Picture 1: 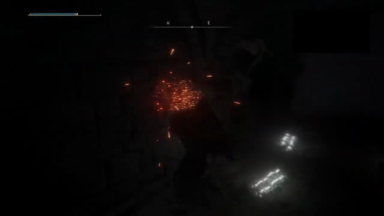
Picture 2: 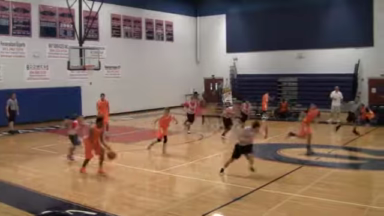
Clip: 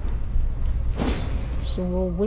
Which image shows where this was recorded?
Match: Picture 1